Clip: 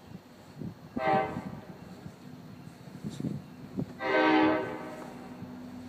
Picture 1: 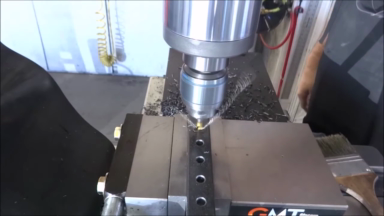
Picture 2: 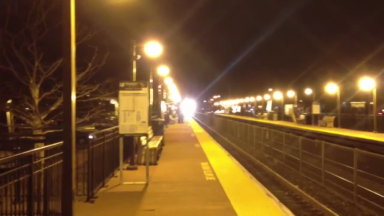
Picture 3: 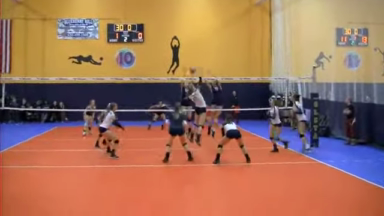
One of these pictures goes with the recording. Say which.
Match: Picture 2